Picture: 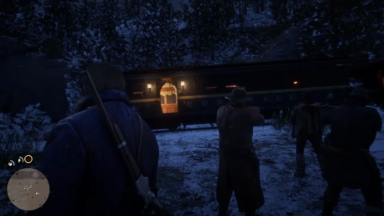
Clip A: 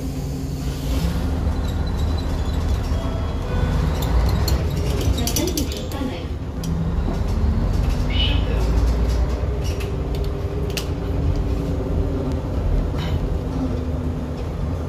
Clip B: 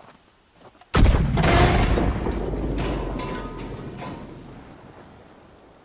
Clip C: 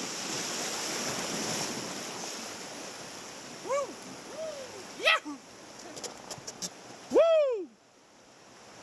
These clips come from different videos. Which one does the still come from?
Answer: B